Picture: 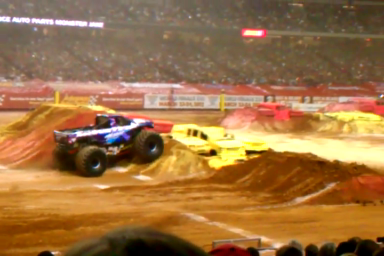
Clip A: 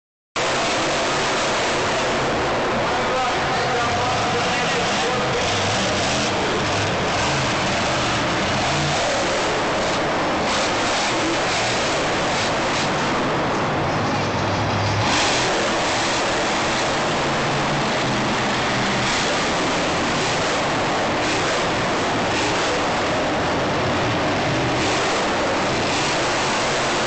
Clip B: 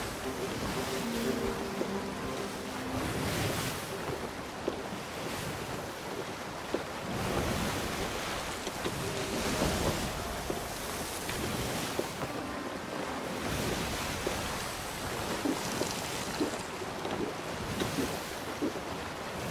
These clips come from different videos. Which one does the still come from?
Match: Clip A